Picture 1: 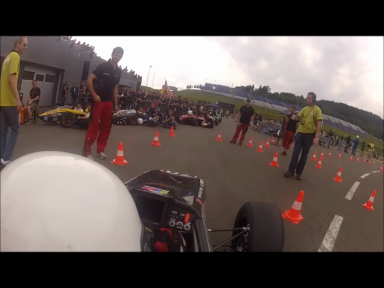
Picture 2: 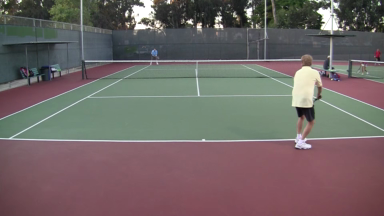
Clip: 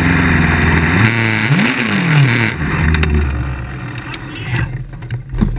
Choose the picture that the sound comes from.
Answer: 1